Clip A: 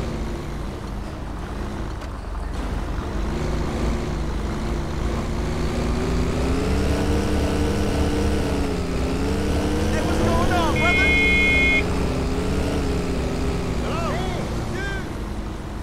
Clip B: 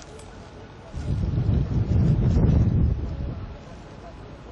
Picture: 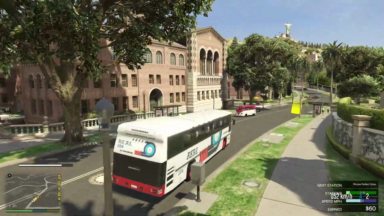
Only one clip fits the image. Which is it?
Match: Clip A